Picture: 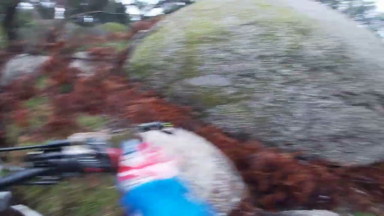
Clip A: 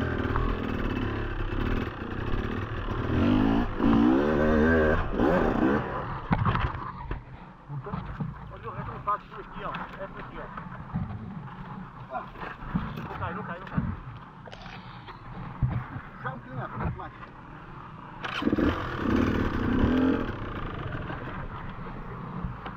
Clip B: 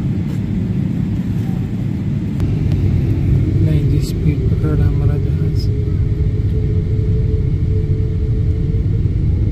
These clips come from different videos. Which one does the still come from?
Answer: A